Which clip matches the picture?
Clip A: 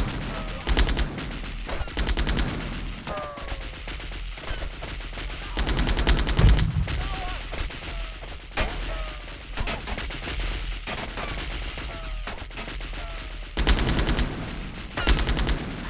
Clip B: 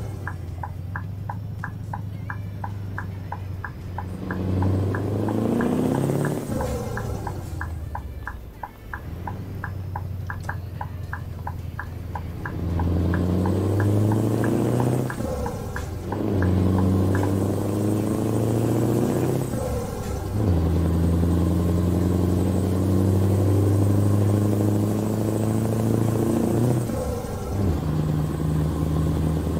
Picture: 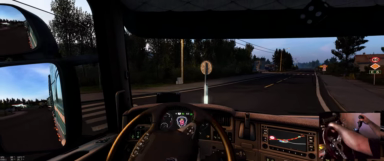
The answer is B